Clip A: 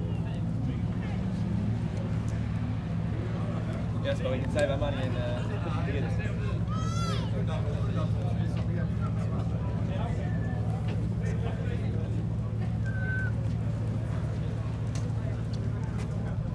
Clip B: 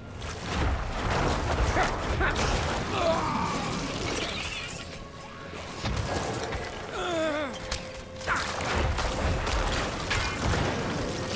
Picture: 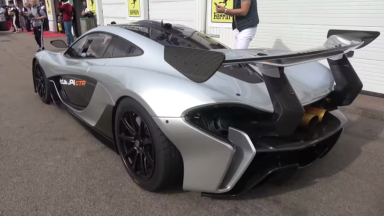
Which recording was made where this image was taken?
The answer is A